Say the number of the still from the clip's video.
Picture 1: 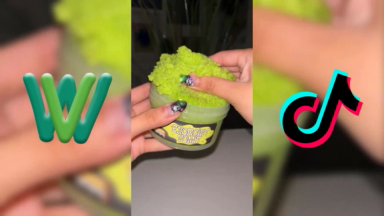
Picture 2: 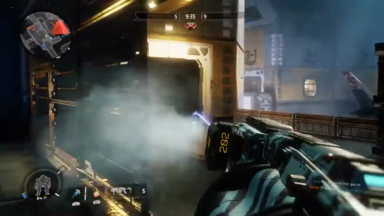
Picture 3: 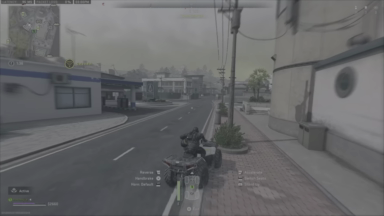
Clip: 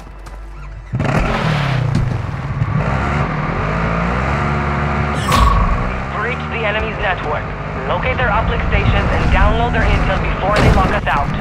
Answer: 3